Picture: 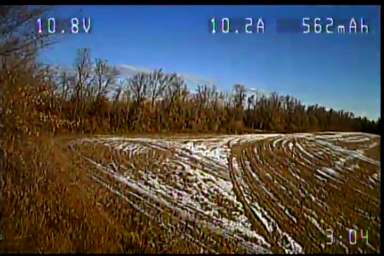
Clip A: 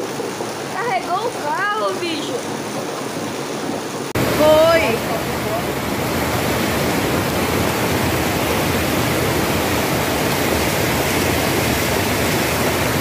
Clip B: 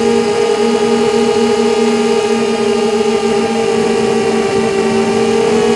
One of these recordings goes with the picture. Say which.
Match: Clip B